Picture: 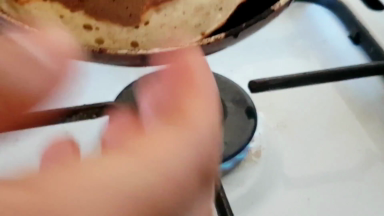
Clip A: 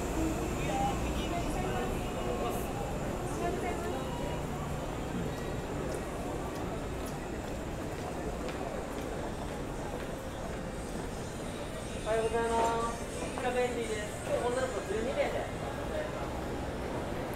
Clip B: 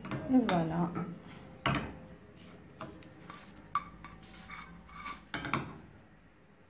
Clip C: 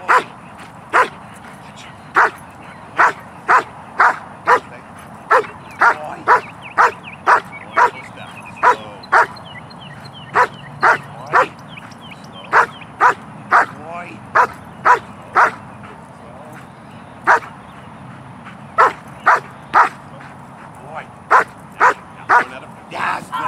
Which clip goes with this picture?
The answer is B